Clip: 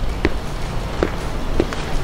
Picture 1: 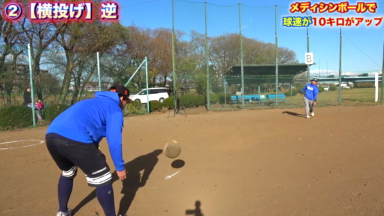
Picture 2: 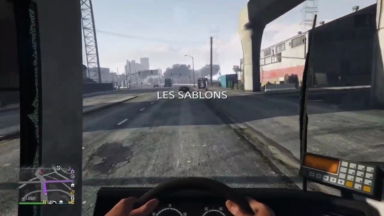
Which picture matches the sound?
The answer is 1